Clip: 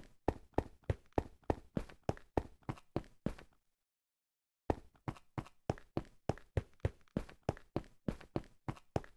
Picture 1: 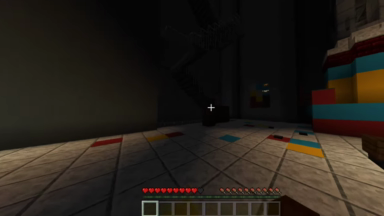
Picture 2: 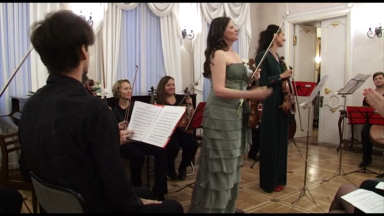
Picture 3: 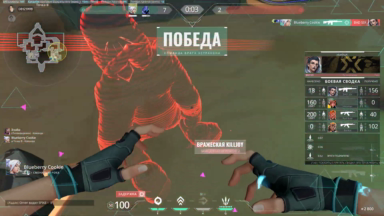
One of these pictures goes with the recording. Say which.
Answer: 1